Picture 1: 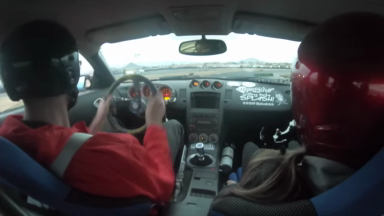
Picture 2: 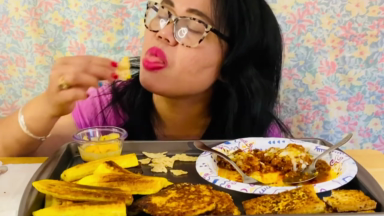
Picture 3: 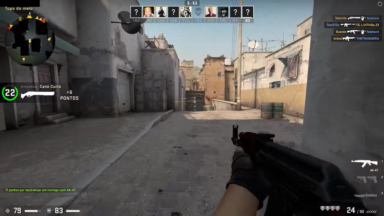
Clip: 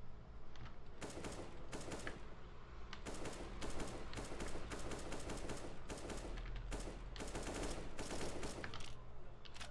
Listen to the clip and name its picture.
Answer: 3